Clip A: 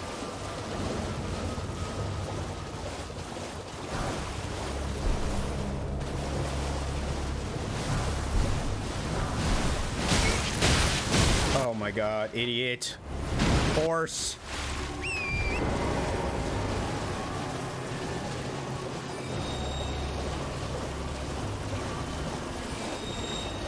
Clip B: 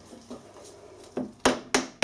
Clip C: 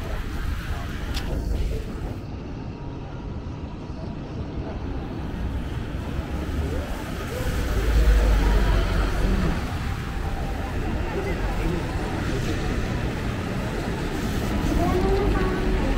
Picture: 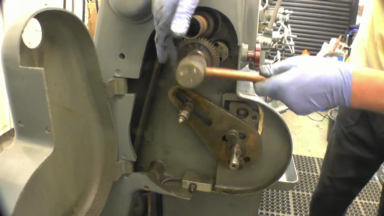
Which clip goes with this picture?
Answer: B